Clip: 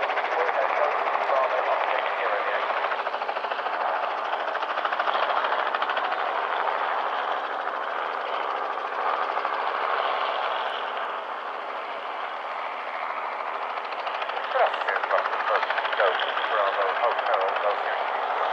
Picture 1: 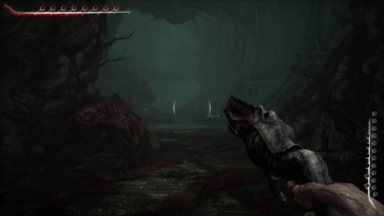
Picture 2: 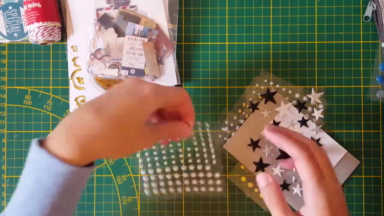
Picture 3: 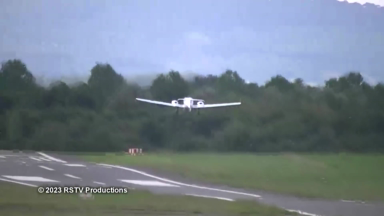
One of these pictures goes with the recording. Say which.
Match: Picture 3